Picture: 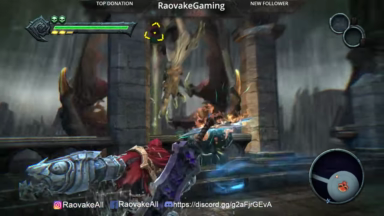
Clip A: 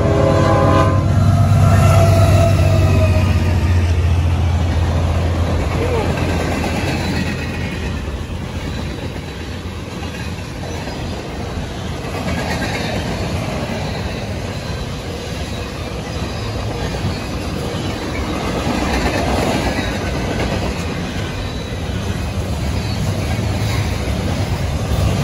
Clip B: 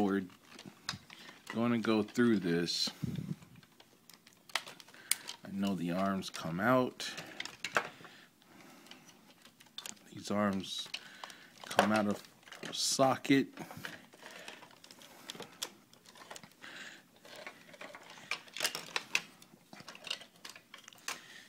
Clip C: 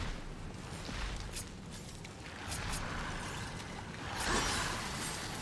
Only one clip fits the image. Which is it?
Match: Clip C